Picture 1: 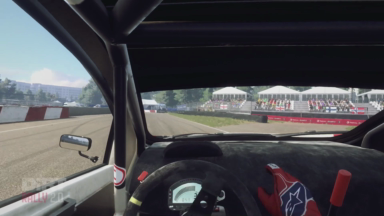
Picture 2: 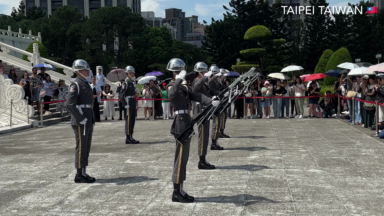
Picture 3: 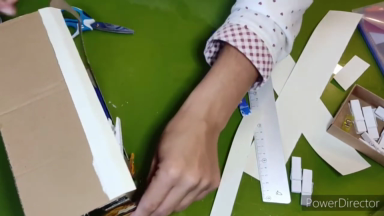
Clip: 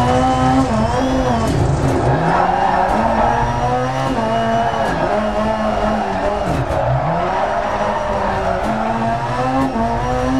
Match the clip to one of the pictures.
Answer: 1